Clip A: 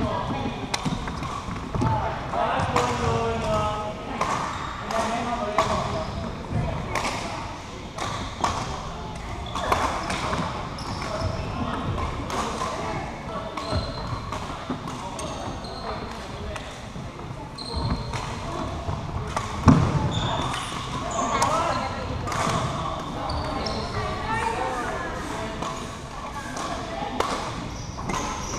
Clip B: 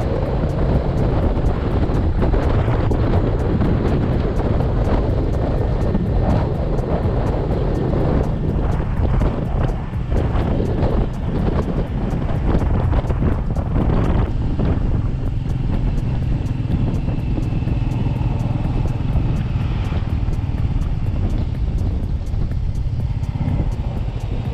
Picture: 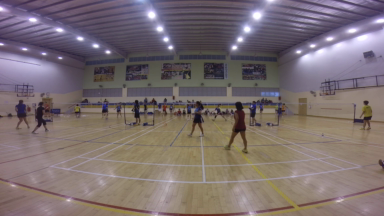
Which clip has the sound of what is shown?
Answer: A